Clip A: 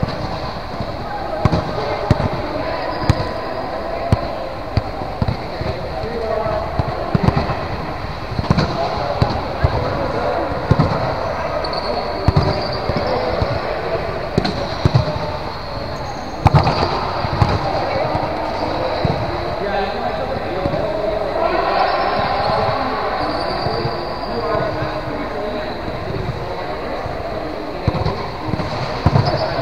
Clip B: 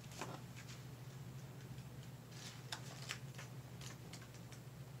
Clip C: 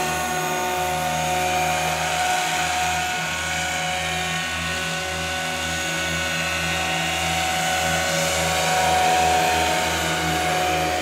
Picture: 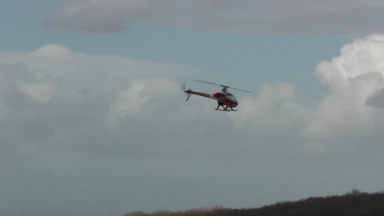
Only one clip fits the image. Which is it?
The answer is C